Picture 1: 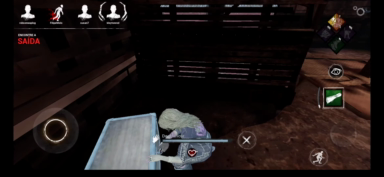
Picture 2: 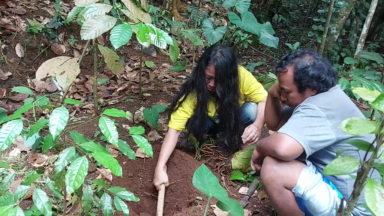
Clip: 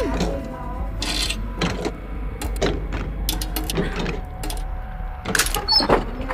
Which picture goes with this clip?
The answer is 1